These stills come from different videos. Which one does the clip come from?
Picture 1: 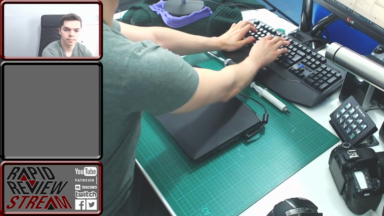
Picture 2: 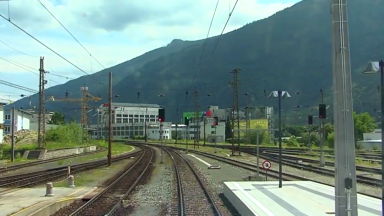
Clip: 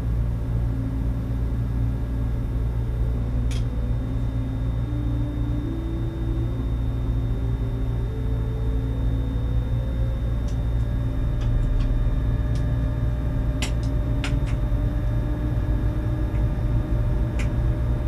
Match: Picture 2